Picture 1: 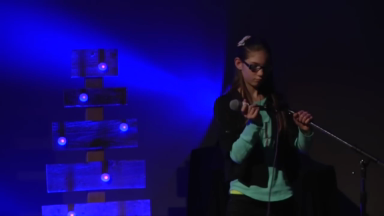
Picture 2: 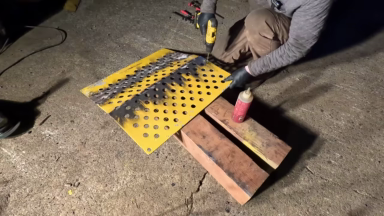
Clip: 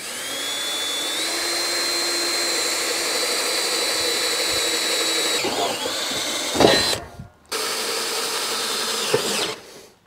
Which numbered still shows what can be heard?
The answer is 2